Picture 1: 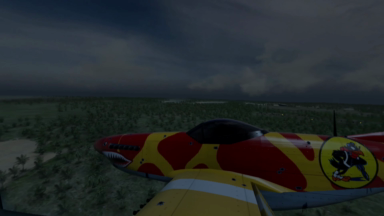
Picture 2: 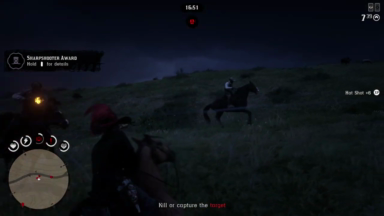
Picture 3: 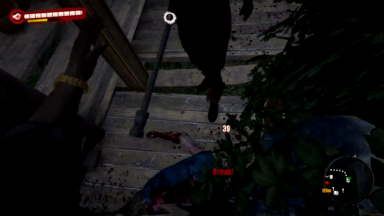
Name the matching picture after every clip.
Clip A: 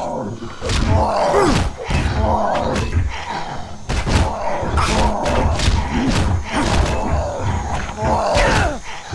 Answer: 3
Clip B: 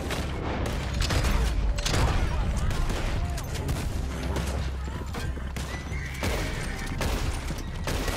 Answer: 2